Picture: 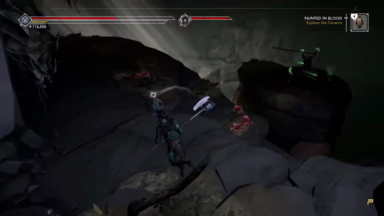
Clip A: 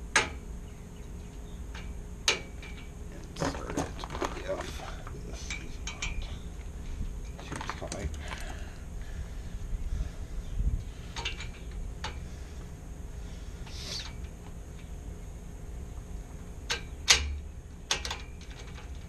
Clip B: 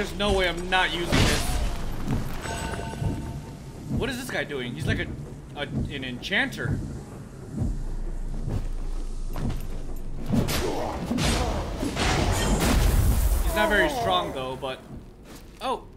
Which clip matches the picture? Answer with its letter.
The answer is B